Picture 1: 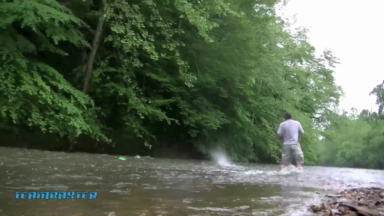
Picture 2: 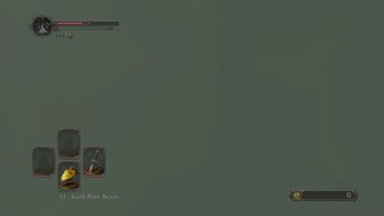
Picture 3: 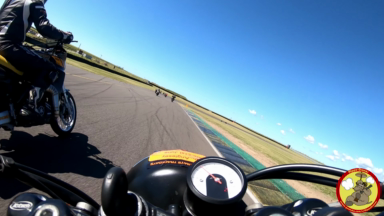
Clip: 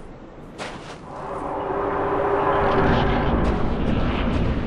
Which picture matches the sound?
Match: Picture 2